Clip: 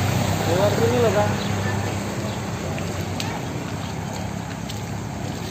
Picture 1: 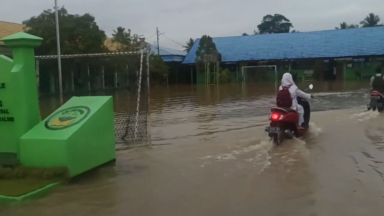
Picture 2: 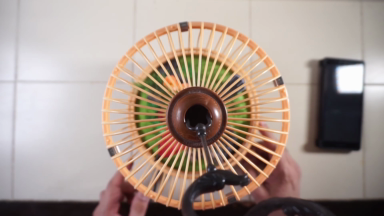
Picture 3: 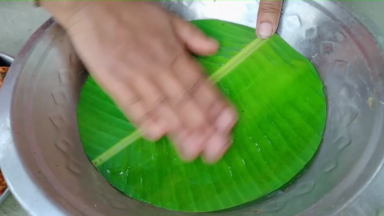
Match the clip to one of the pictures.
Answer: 1